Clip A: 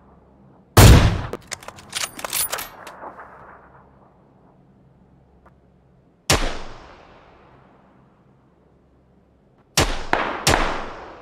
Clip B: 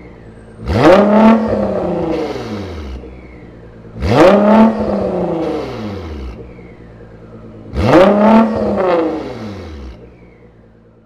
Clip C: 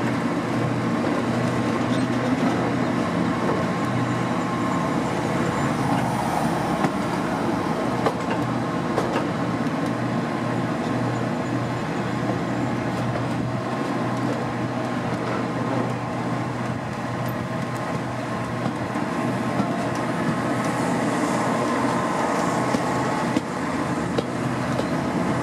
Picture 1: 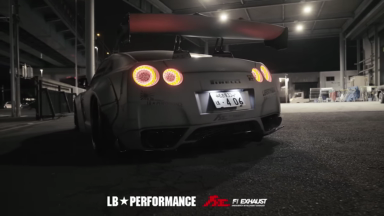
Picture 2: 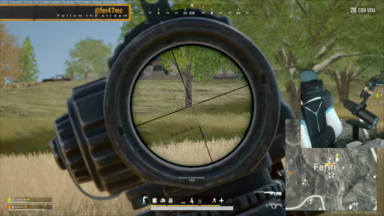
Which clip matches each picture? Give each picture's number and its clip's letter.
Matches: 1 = B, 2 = A